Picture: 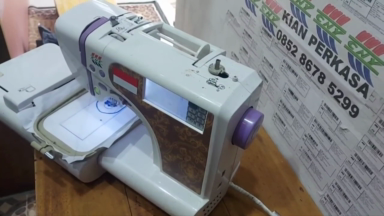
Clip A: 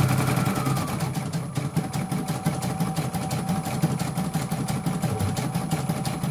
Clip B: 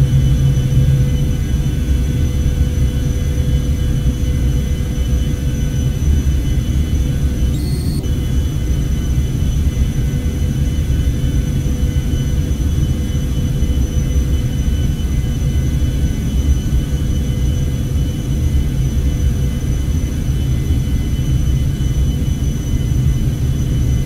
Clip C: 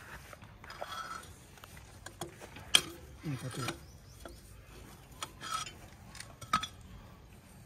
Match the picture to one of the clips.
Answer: A